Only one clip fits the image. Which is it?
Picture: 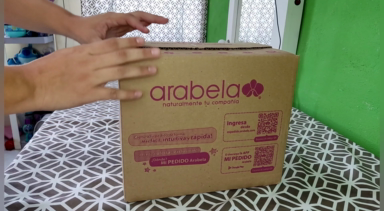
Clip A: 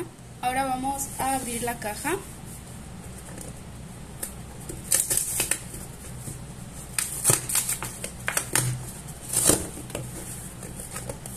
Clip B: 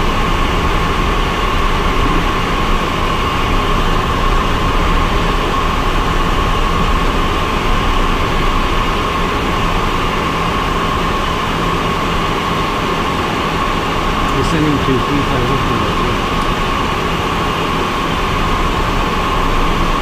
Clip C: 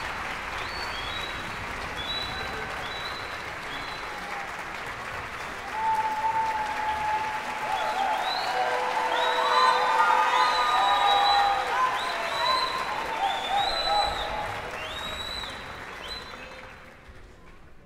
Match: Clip A